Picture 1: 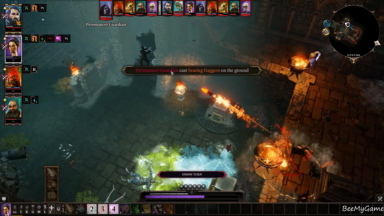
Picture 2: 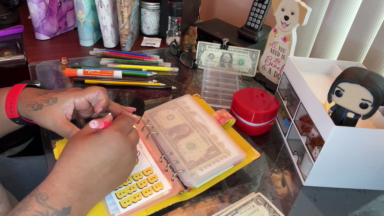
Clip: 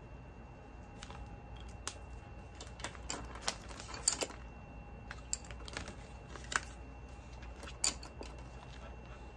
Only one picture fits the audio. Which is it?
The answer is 2